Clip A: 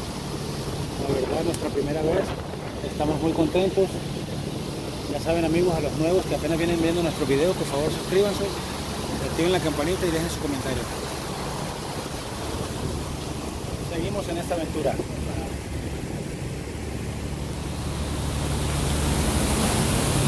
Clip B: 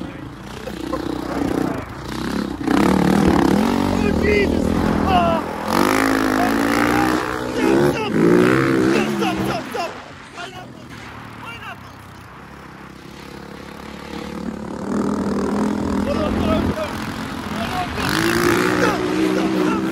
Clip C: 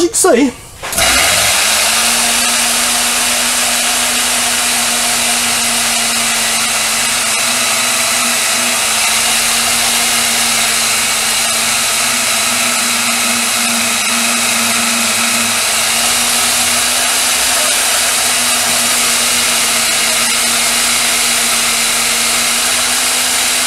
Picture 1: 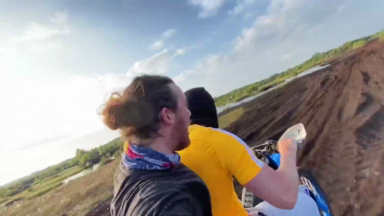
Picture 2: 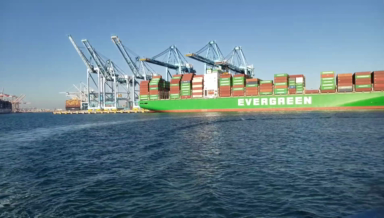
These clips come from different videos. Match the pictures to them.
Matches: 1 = B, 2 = A